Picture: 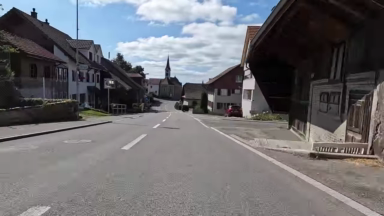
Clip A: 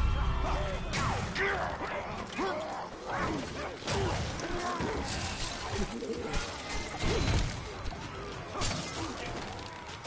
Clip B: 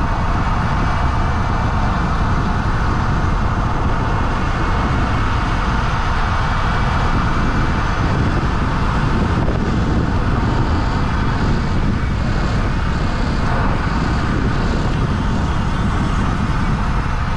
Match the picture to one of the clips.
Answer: B